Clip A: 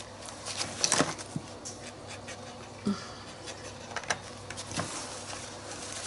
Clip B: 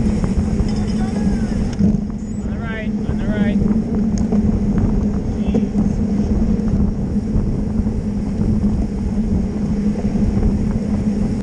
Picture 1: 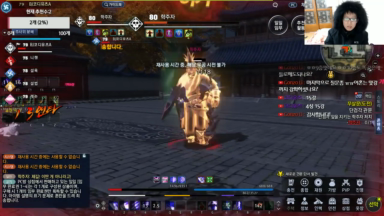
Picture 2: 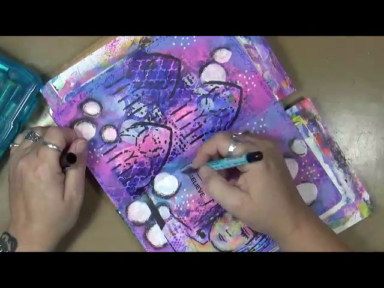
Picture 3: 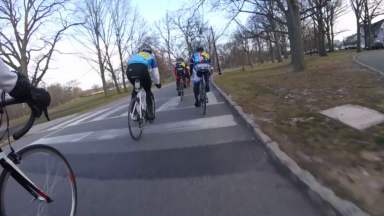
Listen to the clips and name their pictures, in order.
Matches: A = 2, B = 3